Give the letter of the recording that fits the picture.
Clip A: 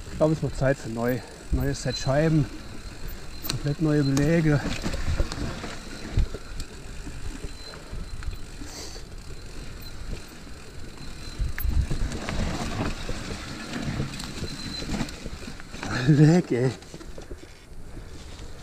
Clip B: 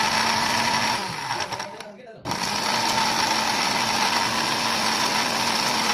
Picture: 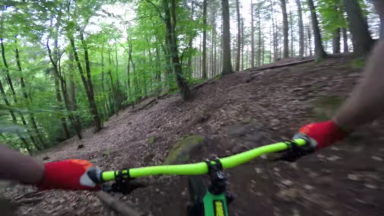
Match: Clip A